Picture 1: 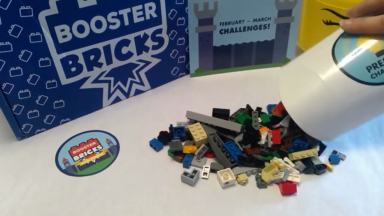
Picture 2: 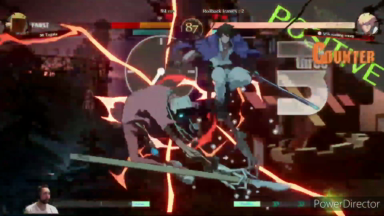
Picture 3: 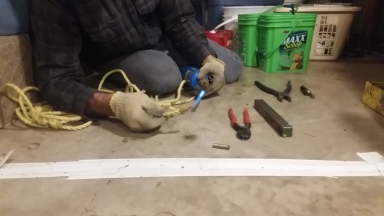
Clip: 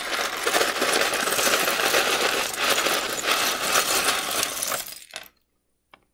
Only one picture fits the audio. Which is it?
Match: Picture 1